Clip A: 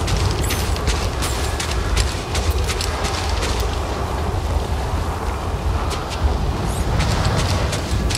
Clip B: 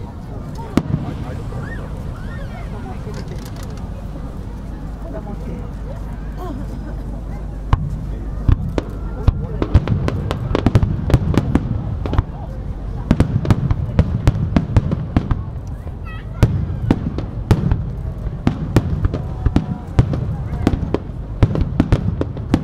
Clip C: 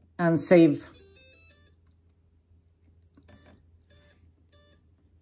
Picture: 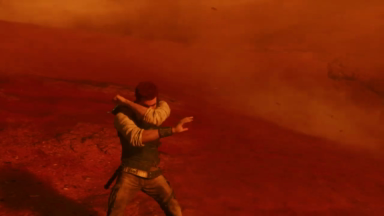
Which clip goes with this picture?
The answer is A